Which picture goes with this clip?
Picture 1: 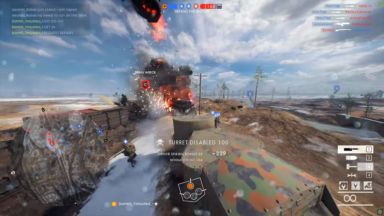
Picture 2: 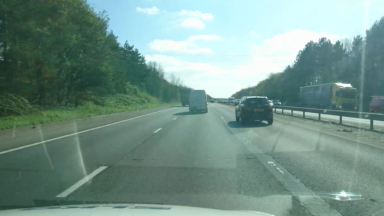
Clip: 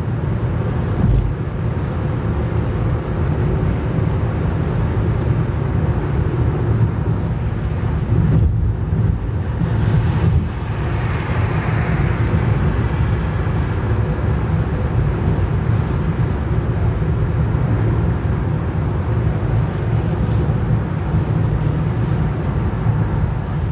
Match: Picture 2